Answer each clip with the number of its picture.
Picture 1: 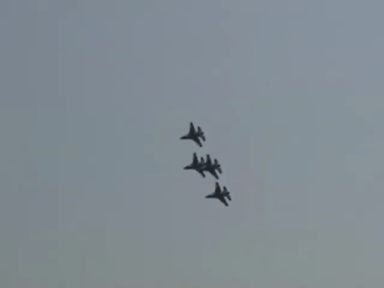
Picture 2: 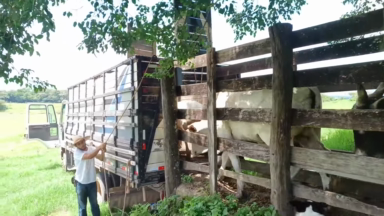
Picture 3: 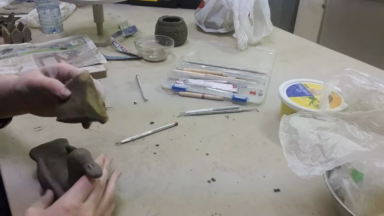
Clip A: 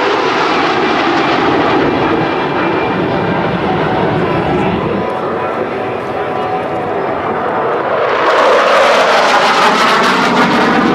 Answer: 1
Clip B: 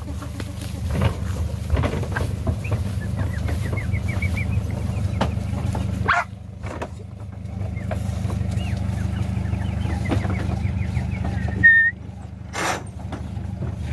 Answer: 2